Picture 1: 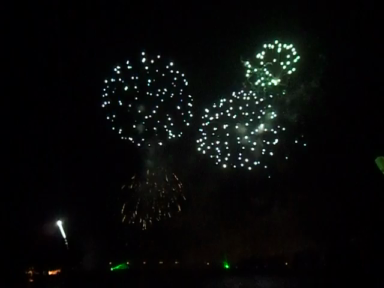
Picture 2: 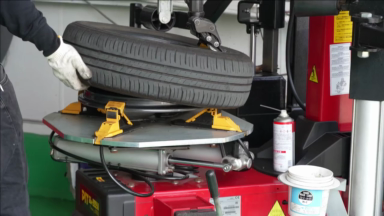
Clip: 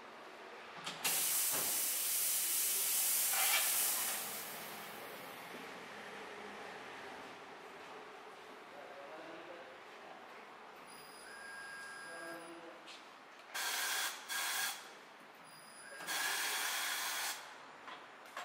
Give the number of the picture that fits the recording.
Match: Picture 2